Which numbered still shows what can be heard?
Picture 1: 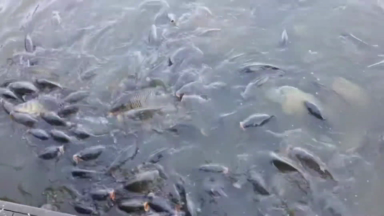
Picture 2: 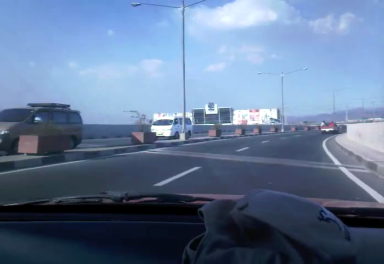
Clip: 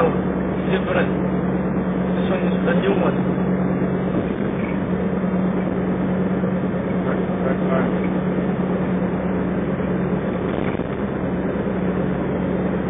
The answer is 2